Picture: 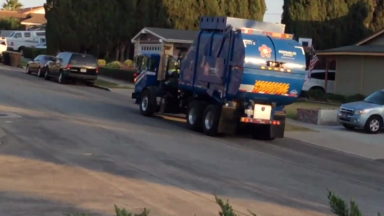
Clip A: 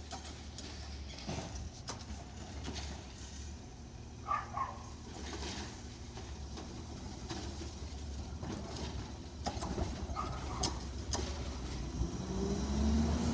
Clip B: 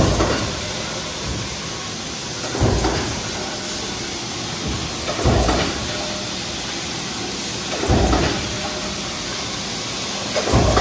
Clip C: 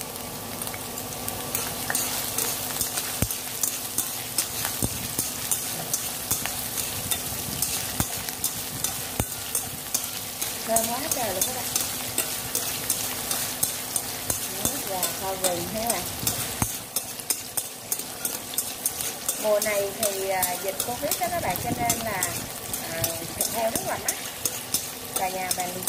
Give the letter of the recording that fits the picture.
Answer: A